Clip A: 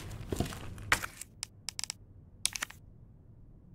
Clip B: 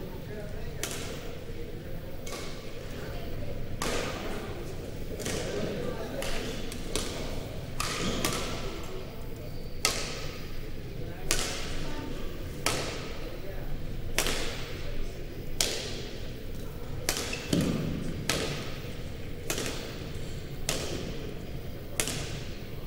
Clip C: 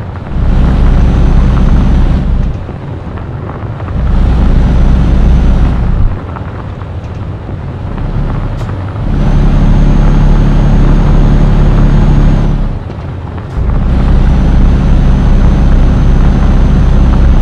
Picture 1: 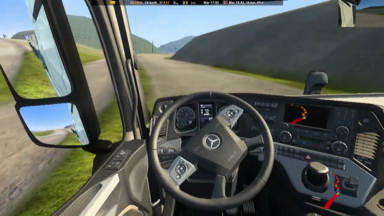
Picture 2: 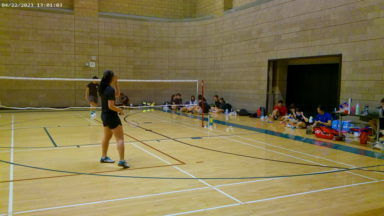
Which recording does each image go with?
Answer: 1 C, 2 B